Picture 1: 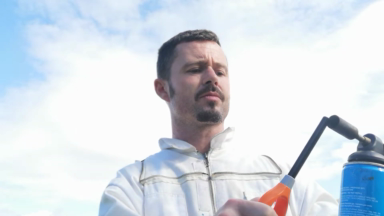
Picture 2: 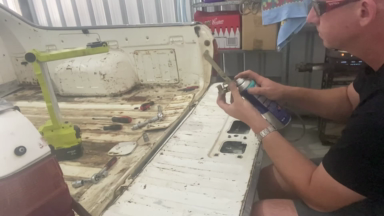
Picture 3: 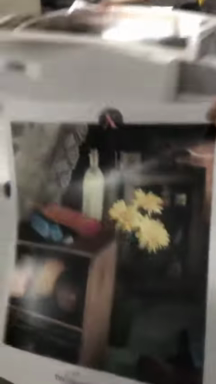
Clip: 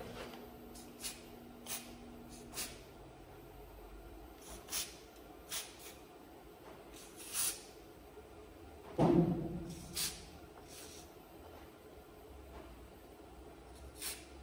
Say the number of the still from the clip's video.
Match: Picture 2